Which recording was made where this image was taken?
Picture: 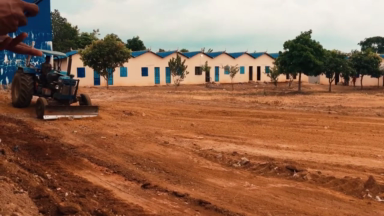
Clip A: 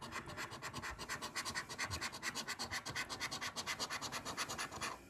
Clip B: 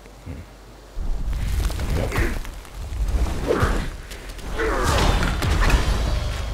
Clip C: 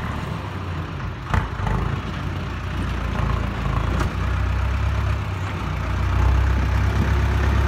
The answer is C